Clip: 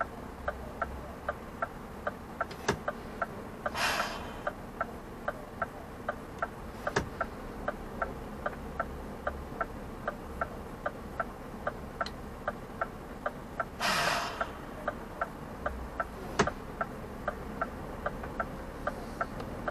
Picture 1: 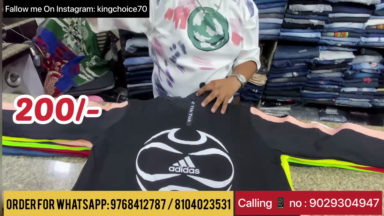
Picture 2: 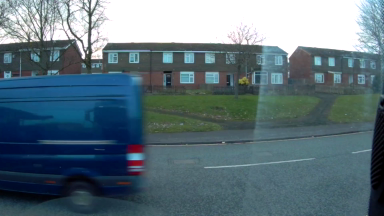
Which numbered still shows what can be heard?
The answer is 2